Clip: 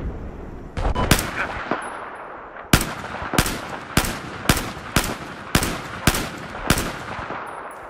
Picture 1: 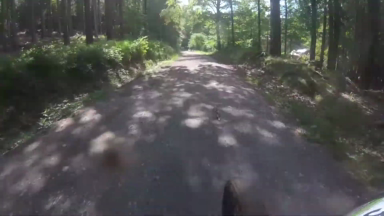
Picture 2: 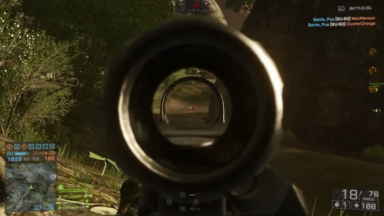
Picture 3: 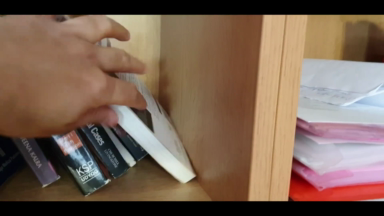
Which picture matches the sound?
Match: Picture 2